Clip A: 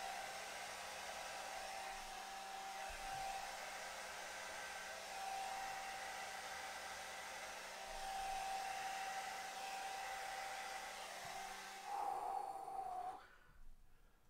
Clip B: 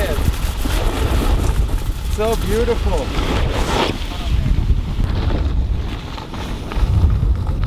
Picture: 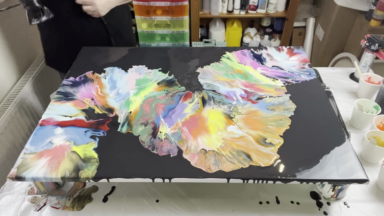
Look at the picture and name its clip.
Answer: A